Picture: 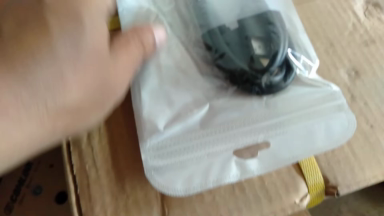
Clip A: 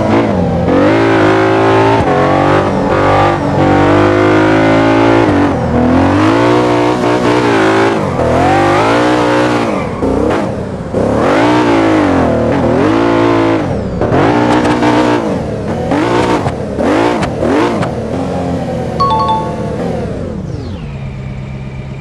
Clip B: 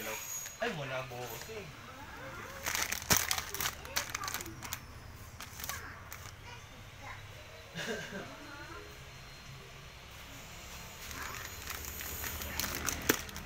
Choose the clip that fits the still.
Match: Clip B